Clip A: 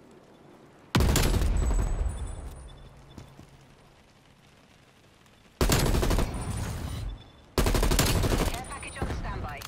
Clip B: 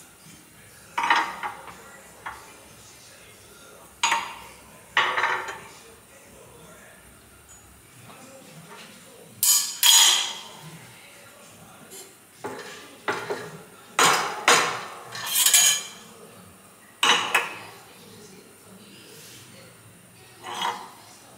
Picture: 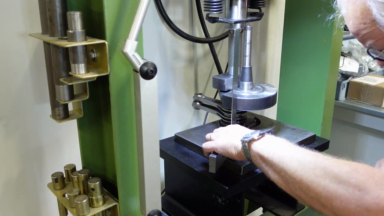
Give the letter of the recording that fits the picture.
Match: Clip B